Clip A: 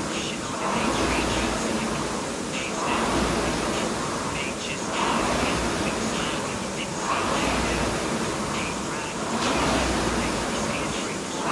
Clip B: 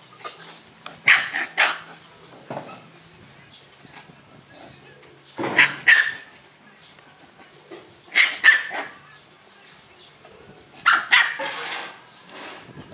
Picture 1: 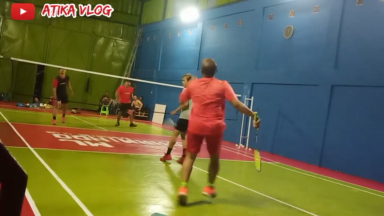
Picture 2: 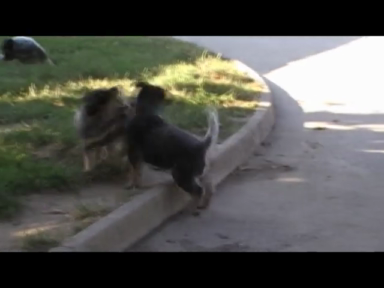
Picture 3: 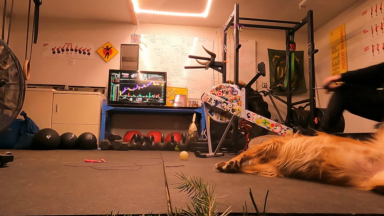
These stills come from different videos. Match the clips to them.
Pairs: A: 3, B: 2